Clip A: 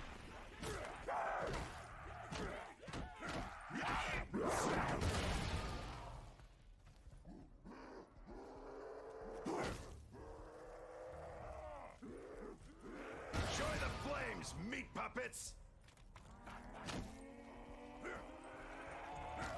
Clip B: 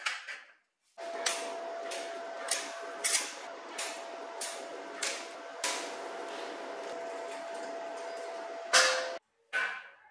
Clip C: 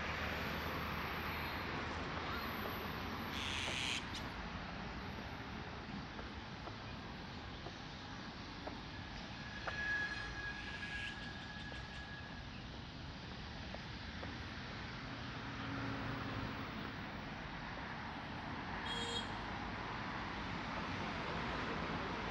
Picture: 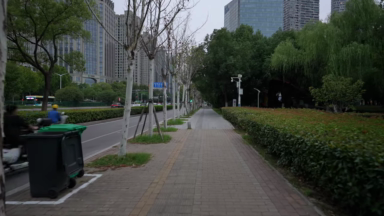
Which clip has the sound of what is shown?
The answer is C